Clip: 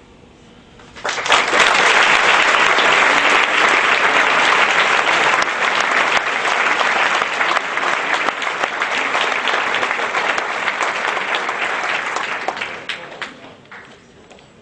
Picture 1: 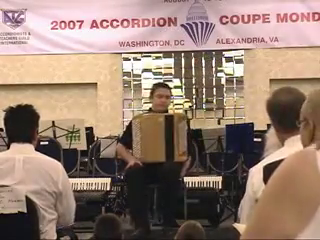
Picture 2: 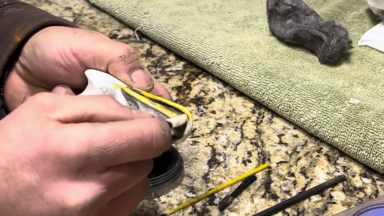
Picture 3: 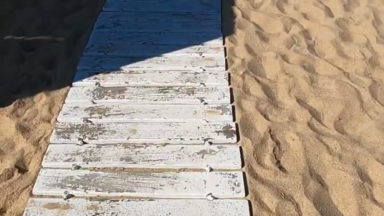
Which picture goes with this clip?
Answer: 1